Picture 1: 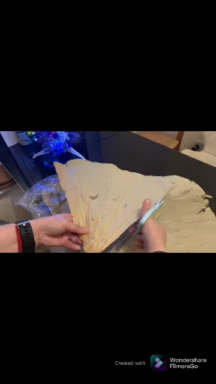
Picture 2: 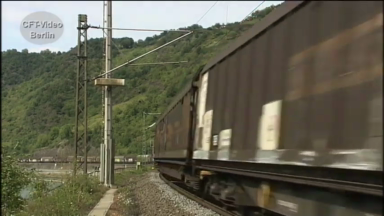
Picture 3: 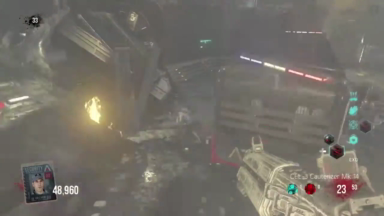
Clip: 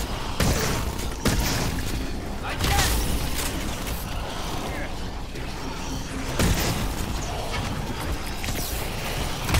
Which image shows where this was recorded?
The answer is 3